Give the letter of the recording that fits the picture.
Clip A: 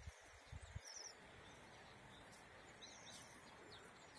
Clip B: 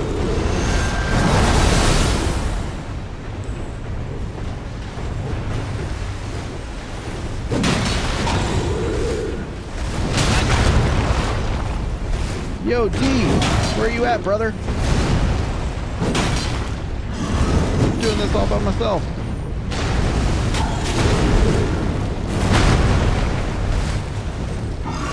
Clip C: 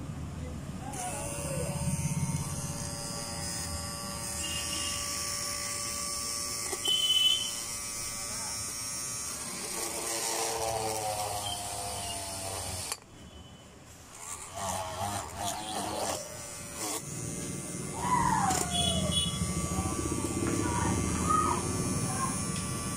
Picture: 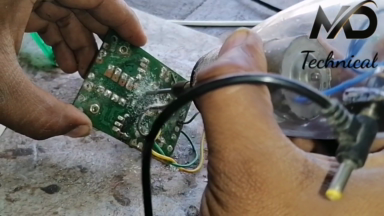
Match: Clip C